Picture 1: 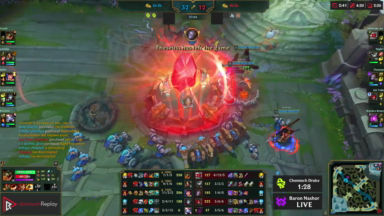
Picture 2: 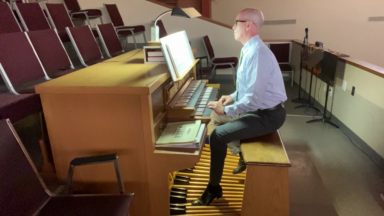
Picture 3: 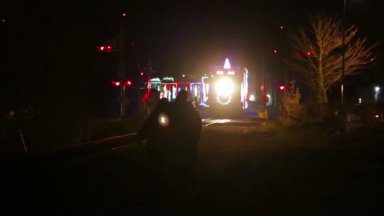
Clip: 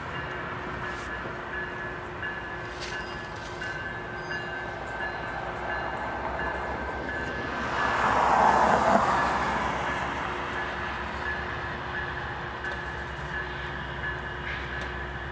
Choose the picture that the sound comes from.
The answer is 3